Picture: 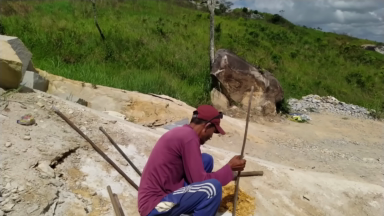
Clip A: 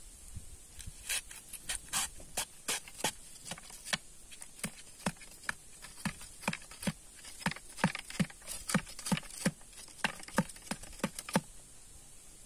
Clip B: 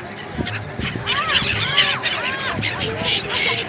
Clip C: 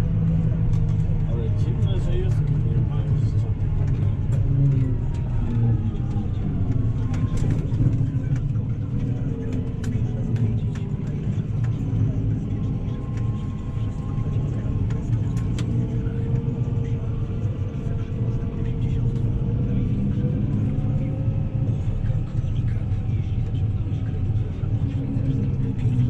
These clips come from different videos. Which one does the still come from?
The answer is A